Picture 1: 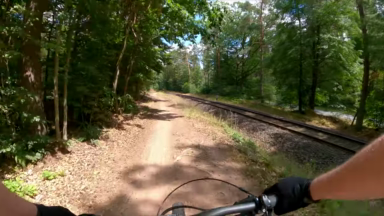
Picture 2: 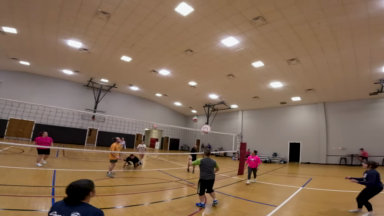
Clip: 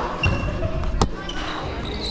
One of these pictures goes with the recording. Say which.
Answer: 2